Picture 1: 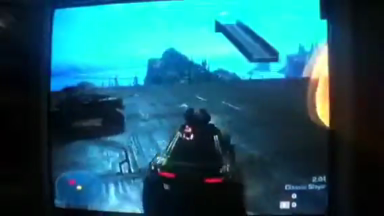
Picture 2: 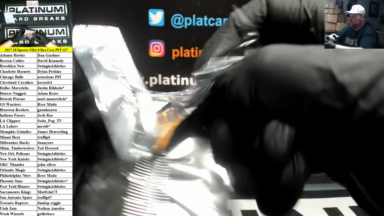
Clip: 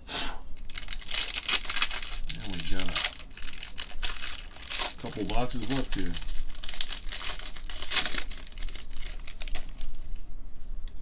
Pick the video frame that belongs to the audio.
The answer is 2